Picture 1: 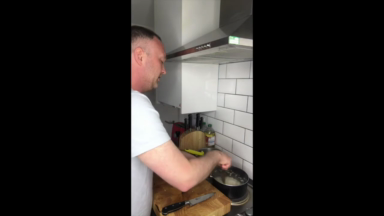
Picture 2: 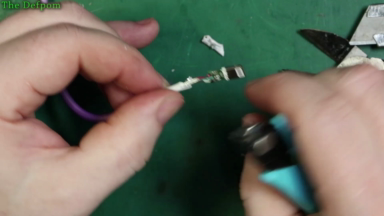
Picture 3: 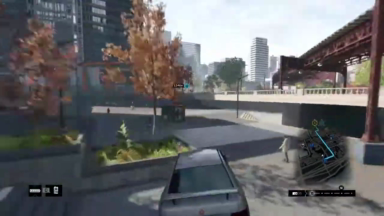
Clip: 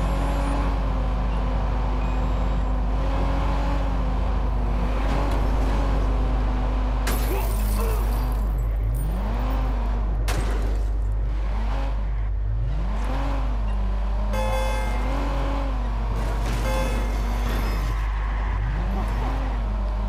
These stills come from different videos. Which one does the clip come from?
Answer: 3